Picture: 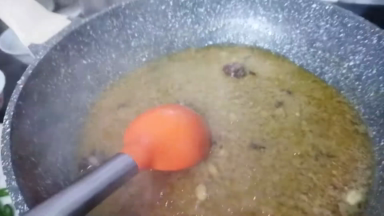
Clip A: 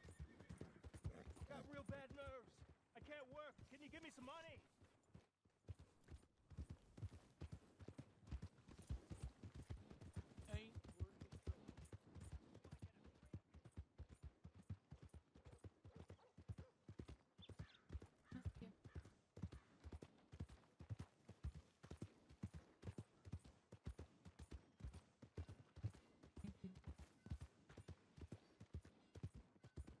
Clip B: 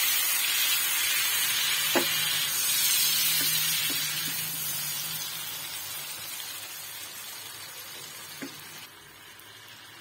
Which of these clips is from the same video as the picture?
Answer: B